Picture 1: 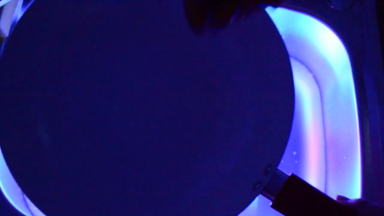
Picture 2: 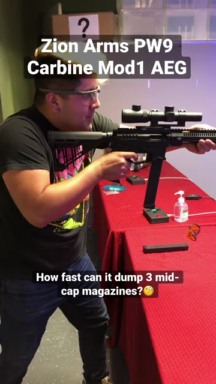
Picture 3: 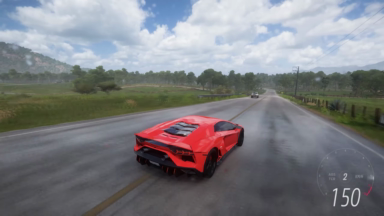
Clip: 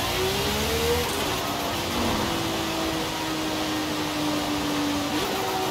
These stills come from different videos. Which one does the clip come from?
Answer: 3